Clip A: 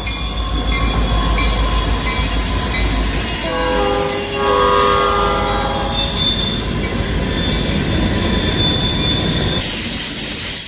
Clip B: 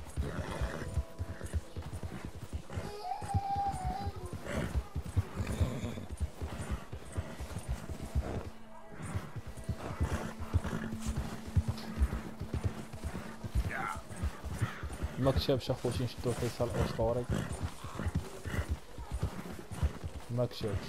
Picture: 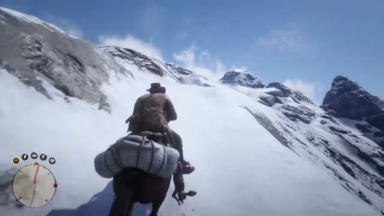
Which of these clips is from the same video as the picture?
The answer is B